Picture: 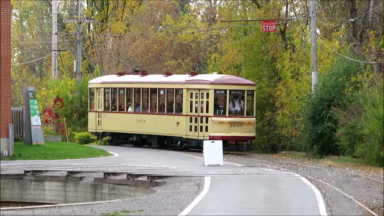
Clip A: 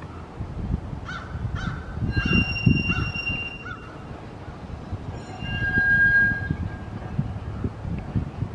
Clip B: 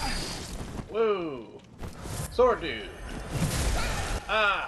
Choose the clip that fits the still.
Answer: A